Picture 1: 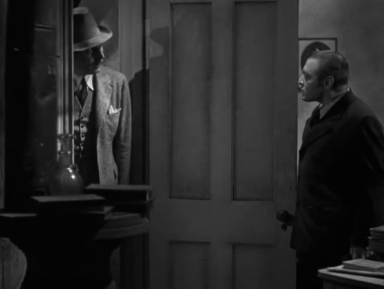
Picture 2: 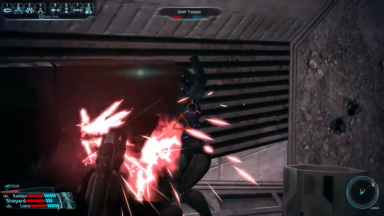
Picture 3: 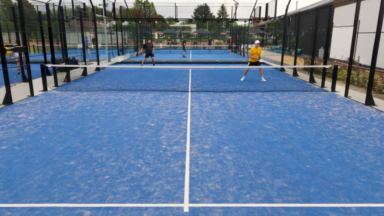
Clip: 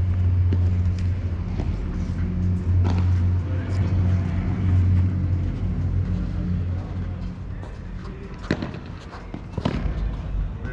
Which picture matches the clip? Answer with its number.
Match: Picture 3